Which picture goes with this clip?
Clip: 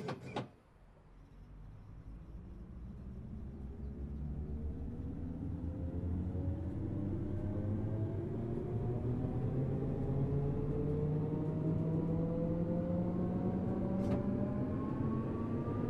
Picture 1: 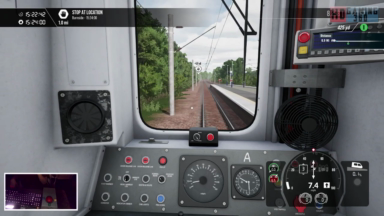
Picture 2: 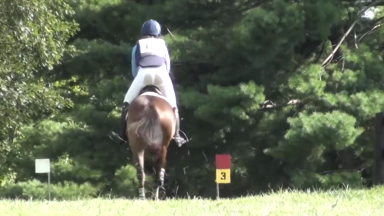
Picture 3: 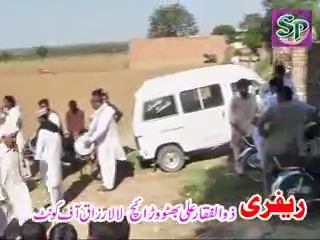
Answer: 1